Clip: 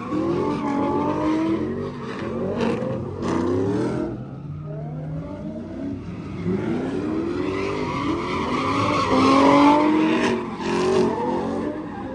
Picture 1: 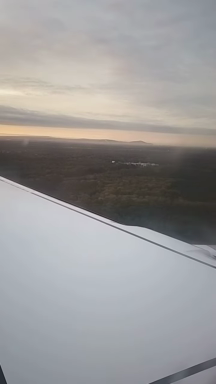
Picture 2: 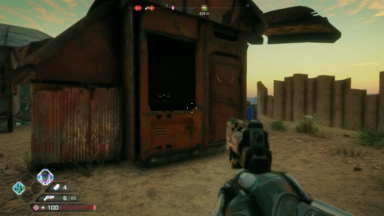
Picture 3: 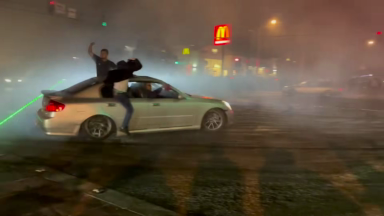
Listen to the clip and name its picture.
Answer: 3